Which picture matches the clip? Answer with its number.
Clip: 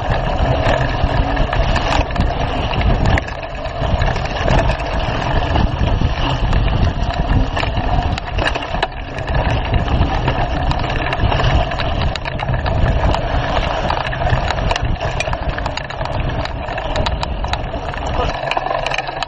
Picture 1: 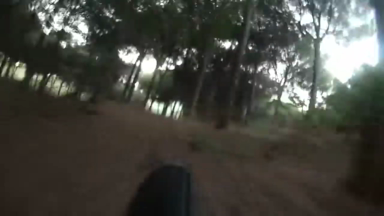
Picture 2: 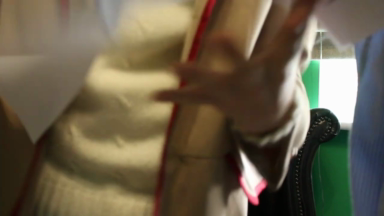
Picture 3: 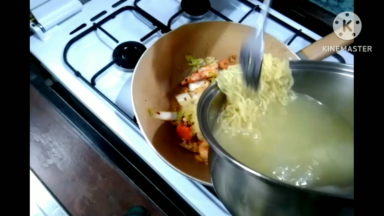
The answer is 1